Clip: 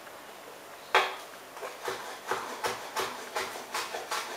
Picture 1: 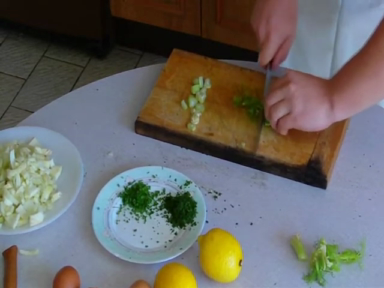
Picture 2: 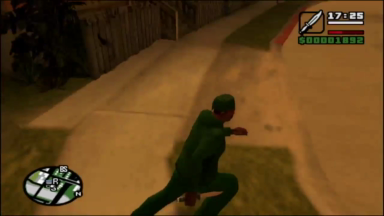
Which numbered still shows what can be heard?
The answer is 1